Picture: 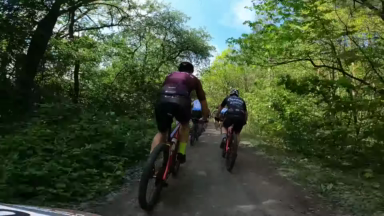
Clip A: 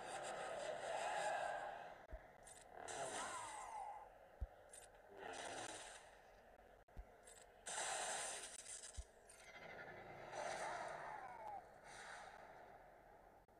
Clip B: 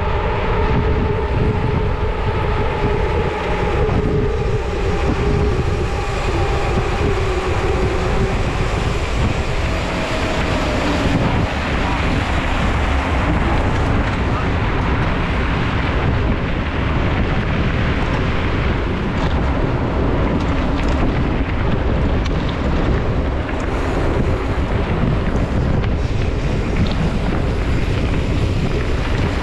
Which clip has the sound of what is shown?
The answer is B